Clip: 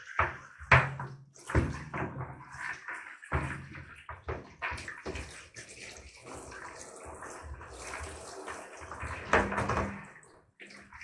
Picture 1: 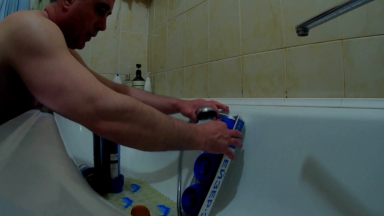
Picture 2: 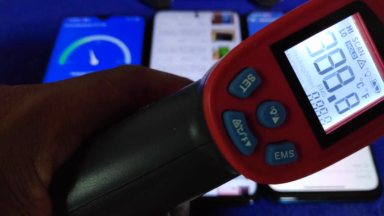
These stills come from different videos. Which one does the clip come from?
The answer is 1